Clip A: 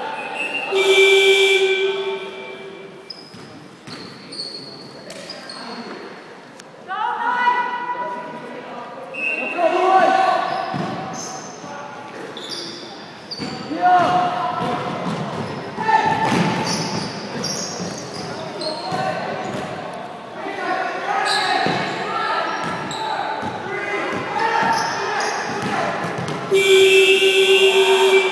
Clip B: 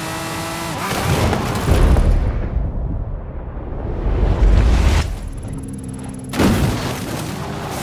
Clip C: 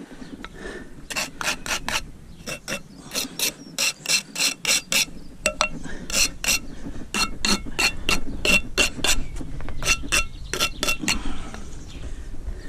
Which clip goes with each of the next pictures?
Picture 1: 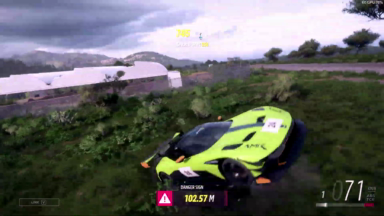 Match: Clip B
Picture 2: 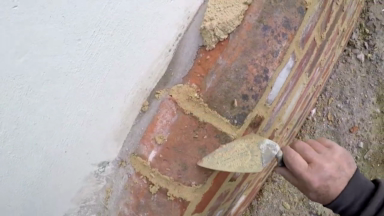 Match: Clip C